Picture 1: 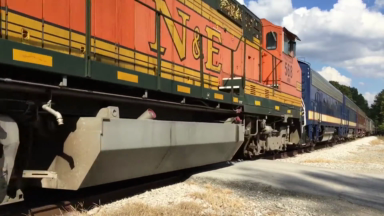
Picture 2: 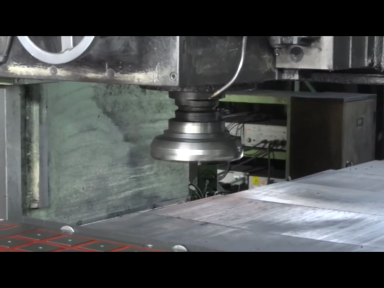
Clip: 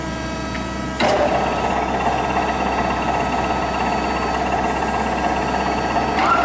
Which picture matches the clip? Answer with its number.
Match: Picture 2